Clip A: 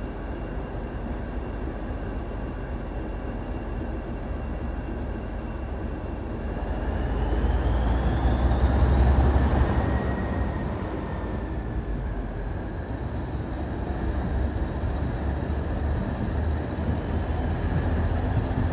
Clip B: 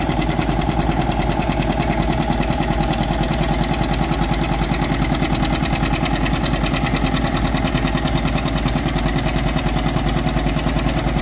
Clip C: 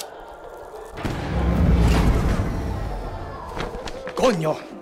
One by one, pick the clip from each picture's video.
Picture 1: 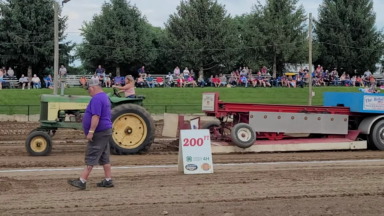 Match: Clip B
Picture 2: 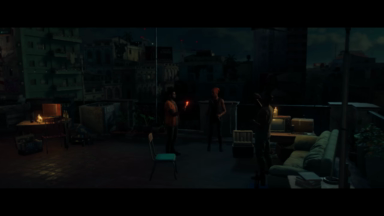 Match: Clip C